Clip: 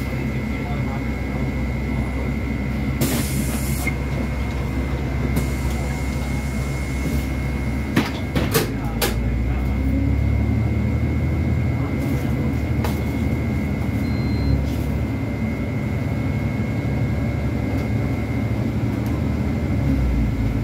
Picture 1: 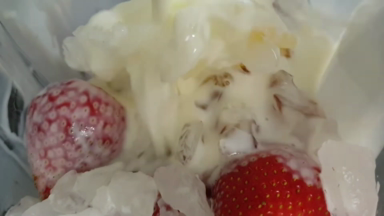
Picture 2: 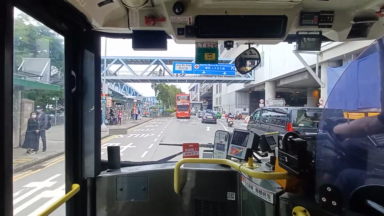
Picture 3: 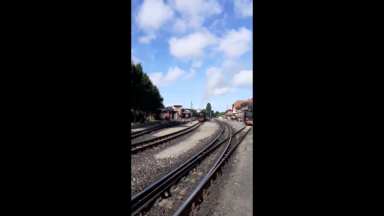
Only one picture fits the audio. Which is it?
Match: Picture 2